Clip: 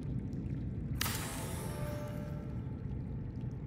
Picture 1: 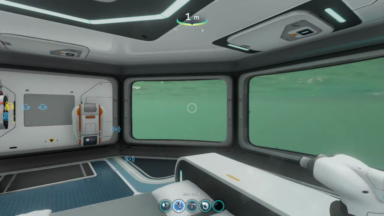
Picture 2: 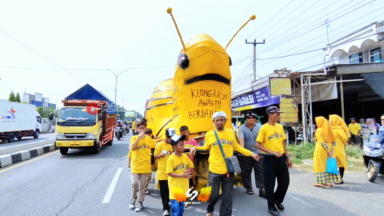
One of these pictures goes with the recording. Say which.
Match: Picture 1